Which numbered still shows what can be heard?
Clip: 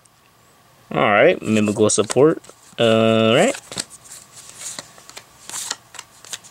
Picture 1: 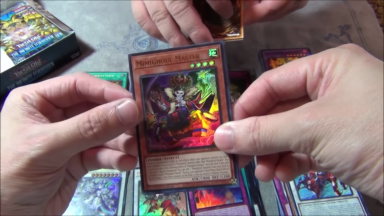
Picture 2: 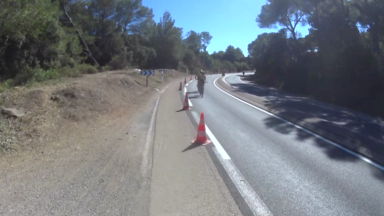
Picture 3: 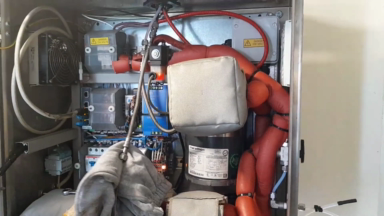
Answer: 1